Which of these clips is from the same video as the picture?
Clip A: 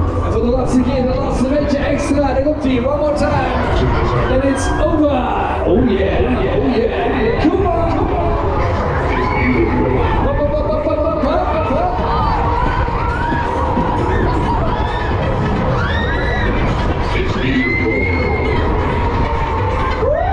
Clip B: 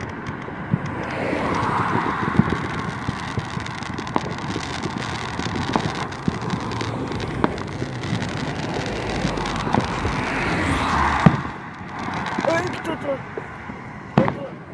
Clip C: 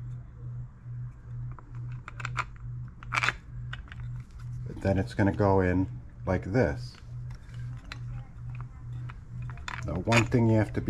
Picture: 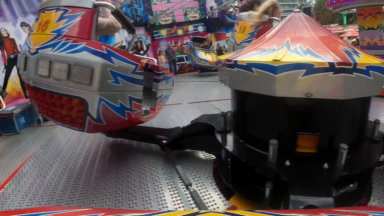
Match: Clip A